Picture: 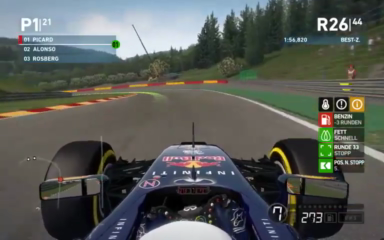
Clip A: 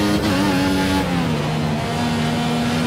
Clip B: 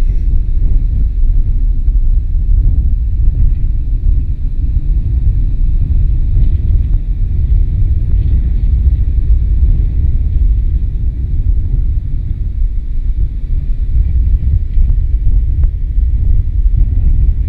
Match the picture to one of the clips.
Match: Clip A